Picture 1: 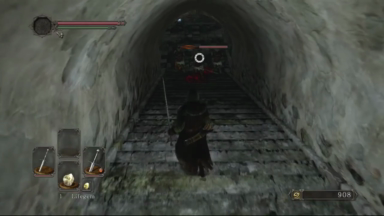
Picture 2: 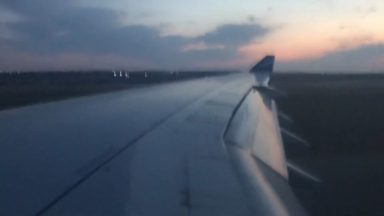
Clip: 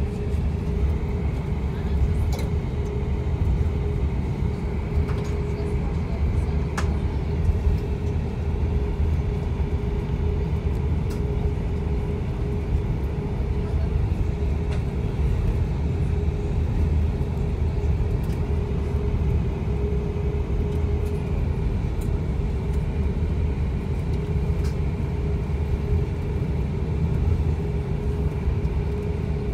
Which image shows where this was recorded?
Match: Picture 2